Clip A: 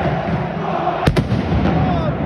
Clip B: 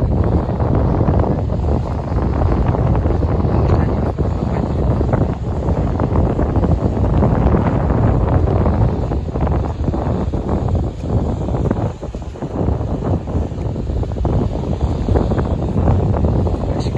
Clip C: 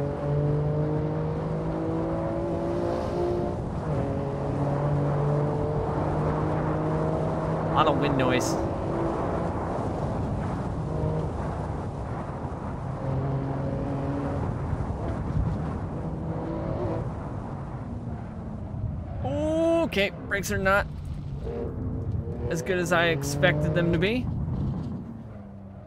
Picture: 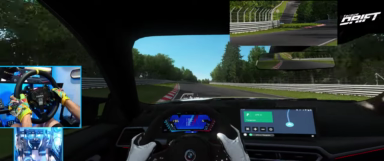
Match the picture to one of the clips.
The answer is C